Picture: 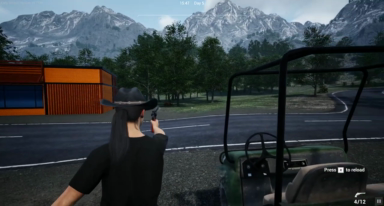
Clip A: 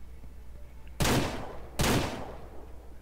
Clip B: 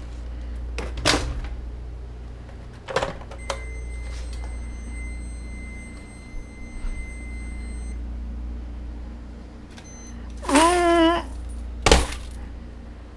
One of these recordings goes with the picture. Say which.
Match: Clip A